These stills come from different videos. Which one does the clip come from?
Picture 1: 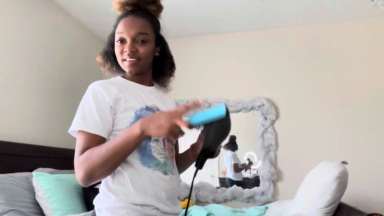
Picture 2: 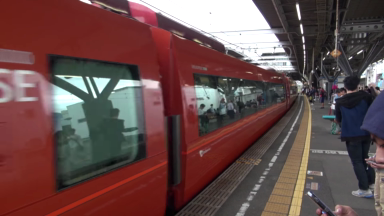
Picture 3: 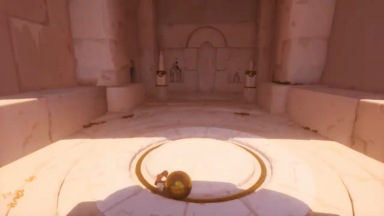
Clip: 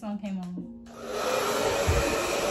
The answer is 1